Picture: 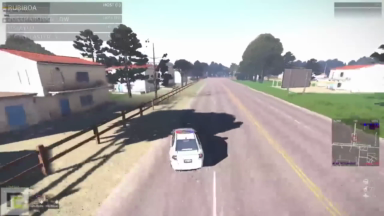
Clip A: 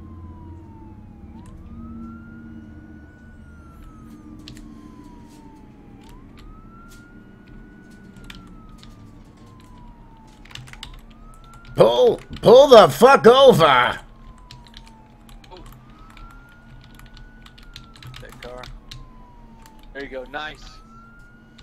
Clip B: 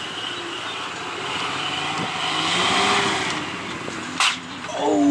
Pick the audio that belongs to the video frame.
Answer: A